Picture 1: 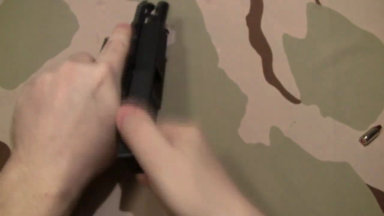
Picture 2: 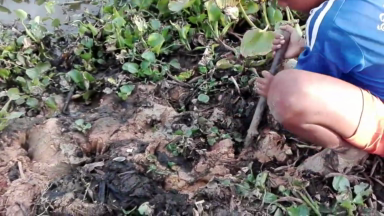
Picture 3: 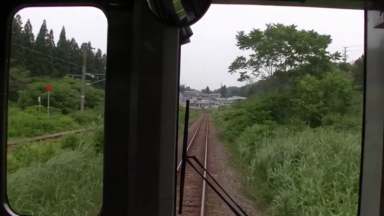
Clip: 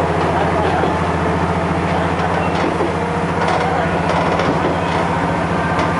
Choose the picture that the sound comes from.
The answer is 3